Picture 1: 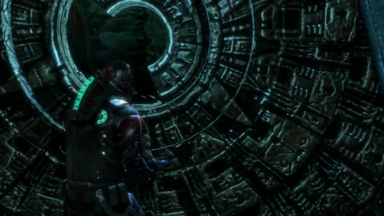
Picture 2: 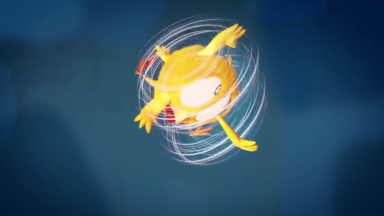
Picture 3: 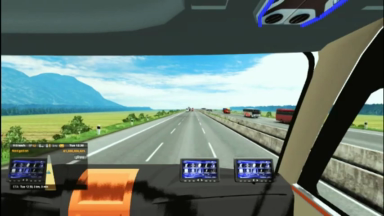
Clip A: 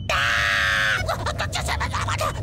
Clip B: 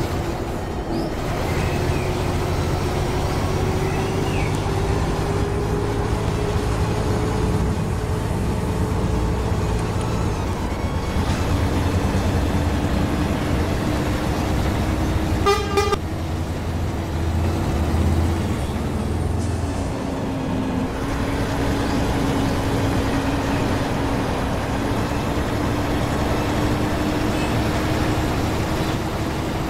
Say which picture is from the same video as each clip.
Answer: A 2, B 3